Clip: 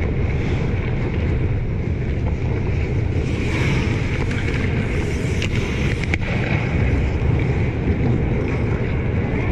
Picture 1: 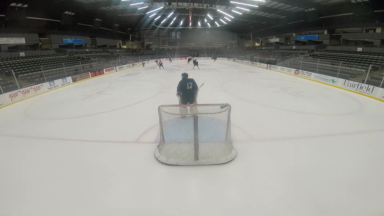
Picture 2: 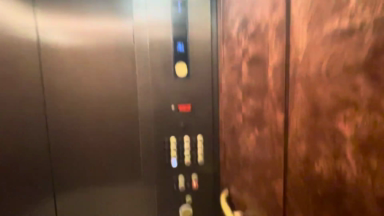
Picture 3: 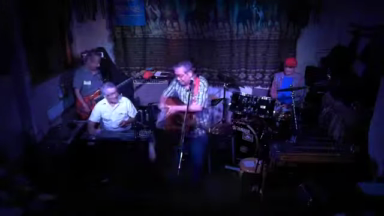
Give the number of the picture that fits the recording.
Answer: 1